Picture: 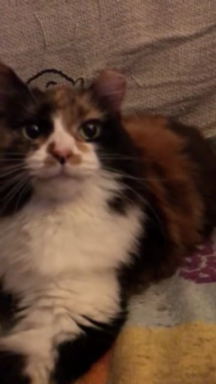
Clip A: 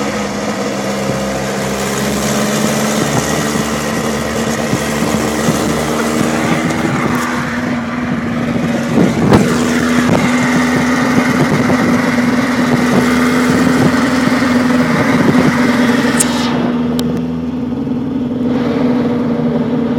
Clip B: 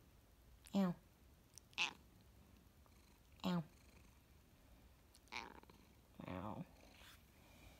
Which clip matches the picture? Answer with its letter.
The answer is B